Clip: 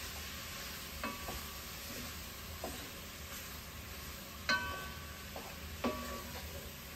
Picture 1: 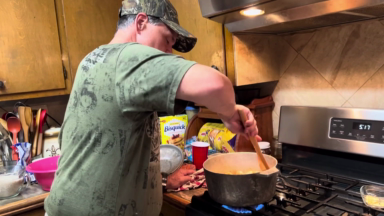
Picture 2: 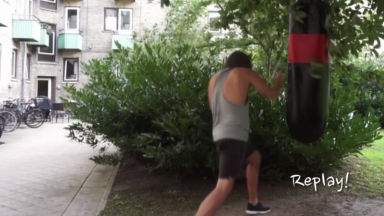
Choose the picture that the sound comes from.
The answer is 1